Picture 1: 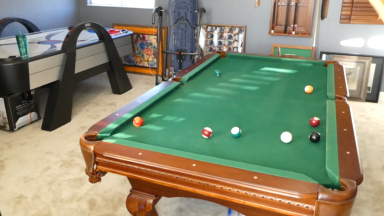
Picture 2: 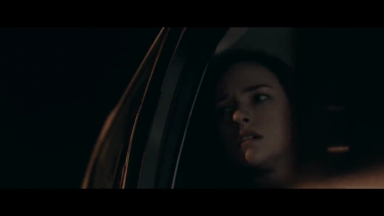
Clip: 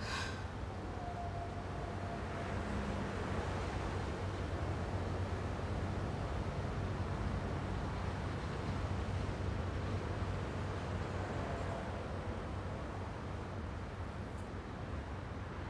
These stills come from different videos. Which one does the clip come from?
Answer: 2